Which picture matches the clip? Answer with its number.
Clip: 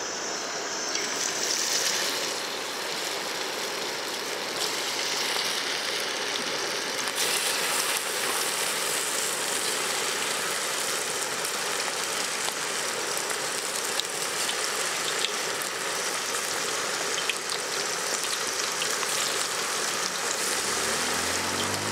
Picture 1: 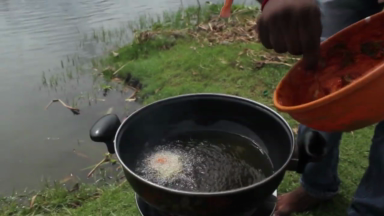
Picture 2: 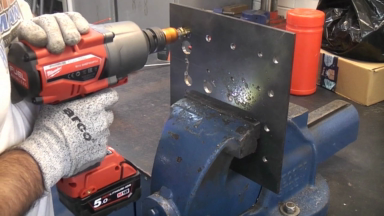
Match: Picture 1